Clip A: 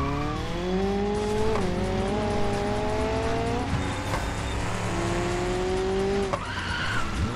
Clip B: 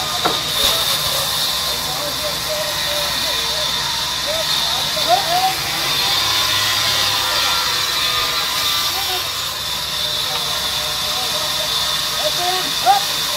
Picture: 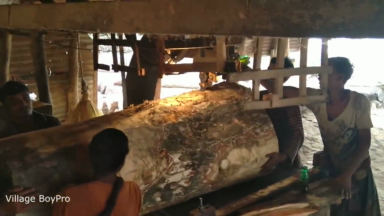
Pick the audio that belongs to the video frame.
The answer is B